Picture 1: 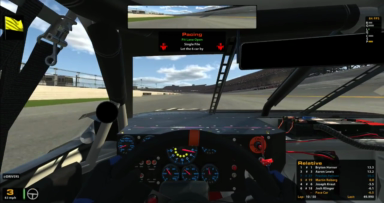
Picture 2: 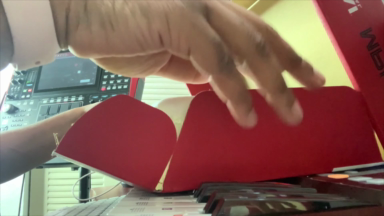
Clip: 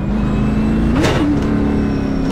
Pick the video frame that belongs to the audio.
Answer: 1